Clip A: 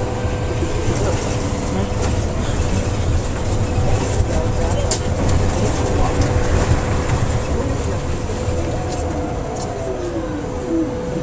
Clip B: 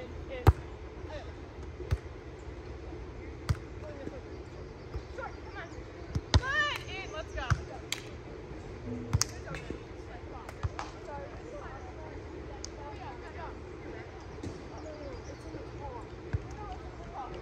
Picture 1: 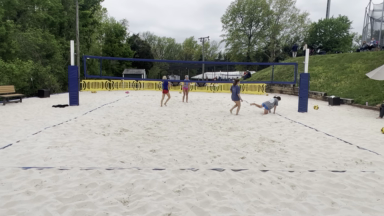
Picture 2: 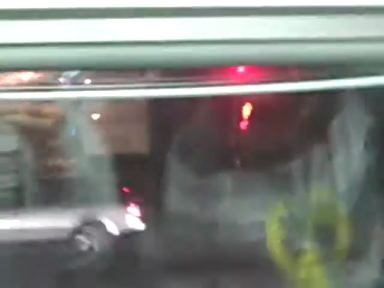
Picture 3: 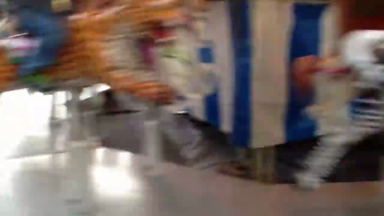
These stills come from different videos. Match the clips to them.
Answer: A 2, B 1